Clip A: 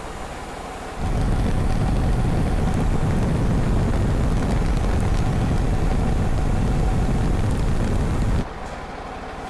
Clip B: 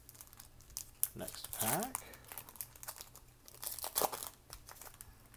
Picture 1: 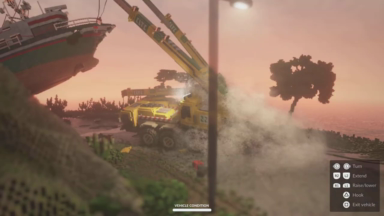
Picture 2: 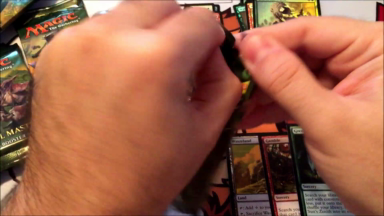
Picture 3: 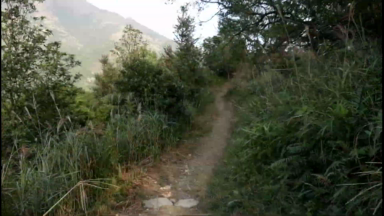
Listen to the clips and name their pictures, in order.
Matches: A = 1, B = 2